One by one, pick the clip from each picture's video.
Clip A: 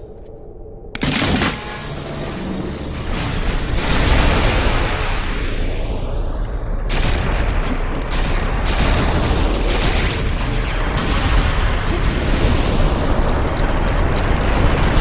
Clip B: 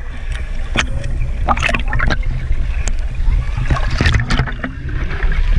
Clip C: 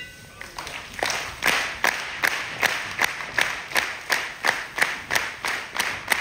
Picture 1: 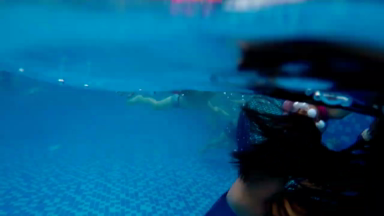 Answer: B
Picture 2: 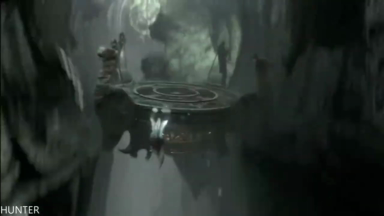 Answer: A